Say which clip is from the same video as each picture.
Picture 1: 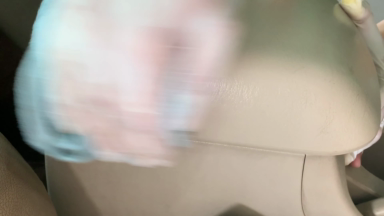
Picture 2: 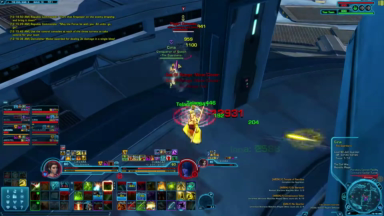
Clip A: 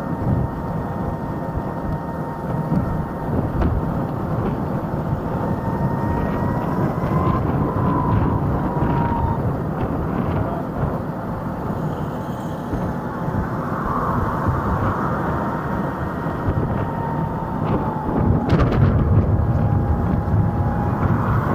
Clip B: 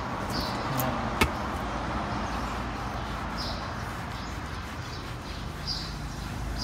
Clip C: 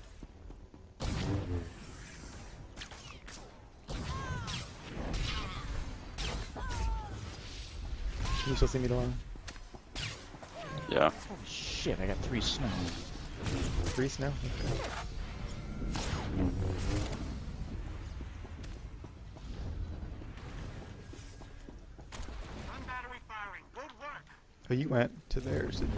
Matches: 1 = B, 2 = C